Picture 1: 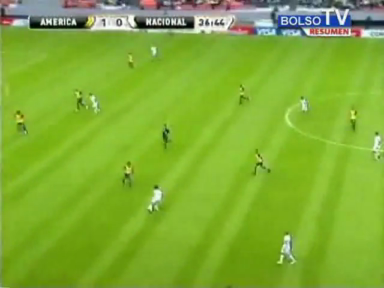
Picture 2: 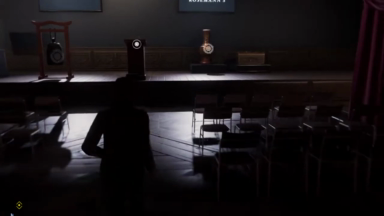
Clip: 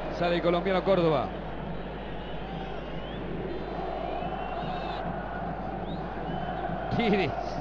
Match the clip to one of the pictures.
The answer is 1